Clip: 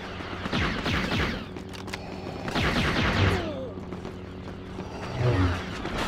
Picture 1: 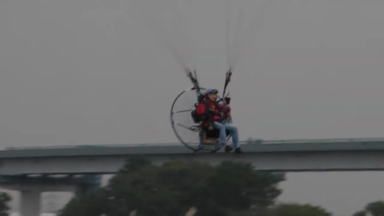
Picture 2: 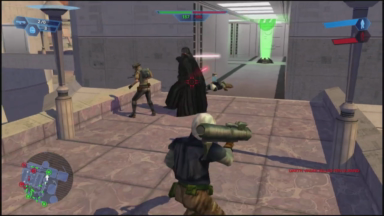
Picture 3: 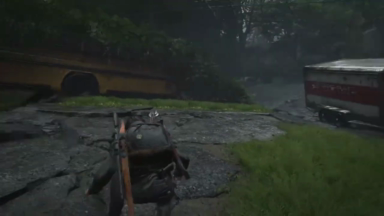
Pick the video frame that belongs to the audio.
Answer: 2